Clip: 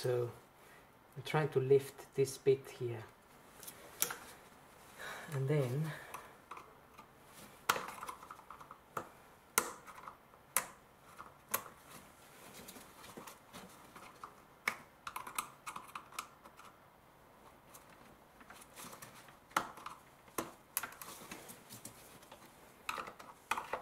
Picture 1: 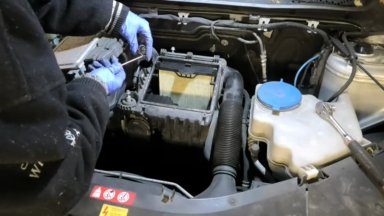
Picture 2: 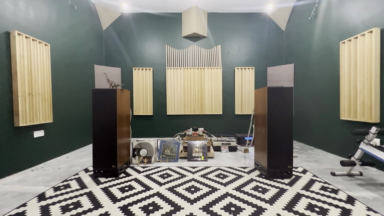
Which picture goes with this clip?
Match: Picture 1